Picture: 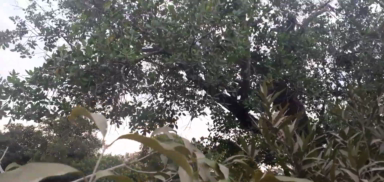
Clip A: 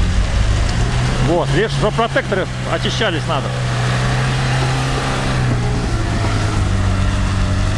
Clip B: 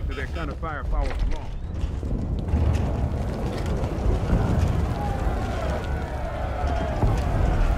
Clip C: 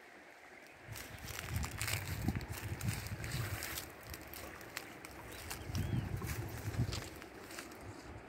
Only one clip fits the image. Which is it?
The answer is C